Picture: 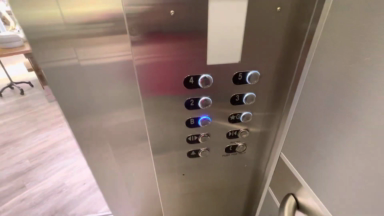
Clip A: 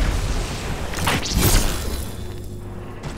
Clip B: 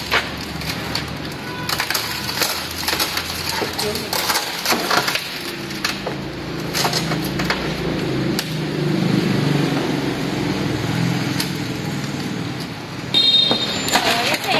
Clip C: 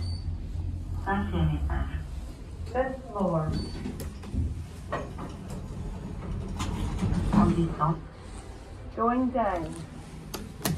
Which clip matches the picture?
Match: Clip C